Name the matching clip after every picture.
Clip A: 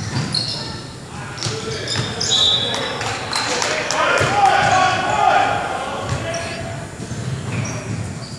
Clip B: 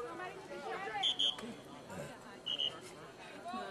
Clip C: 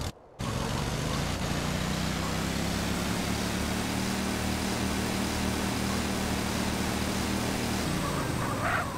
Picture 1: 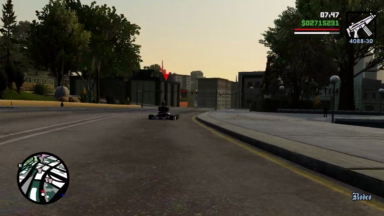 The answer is C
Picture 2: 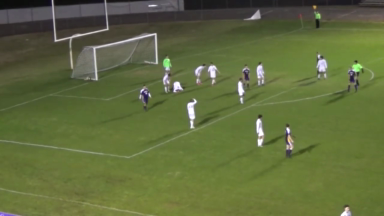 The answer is B